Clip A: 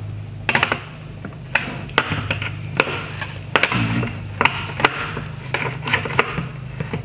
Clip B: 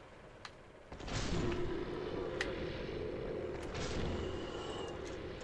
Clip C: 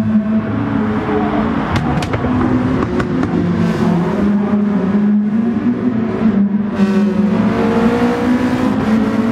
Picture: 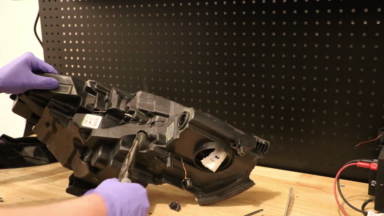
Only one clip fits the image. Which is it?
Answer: A